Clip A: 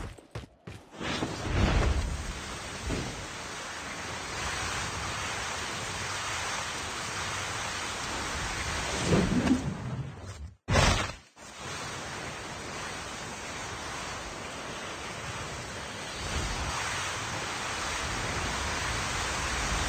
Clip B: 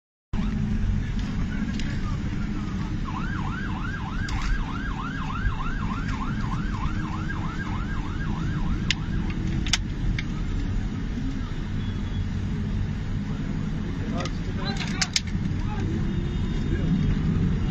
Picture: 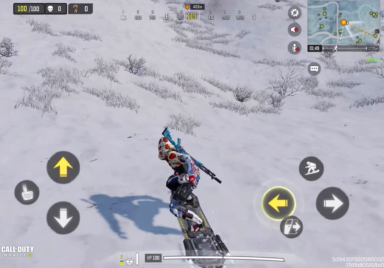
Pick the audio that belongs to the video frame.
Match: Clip A